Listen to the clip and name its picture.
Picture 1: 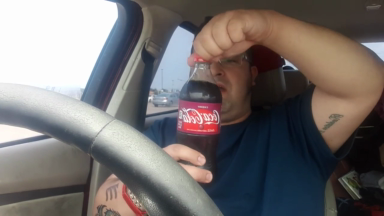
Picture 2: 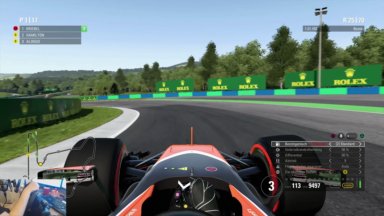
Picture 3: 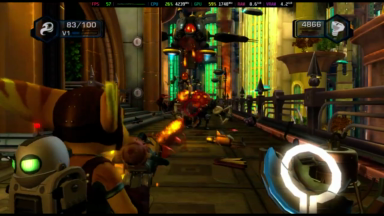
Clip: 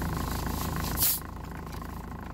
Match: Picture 1